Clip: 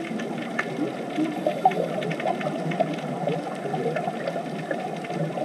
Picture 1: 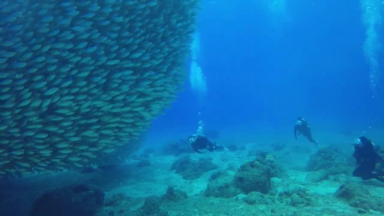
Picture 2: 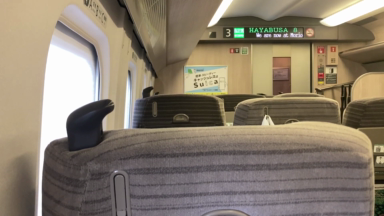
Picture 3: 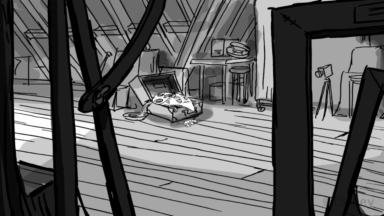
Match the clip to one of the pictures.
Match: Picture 1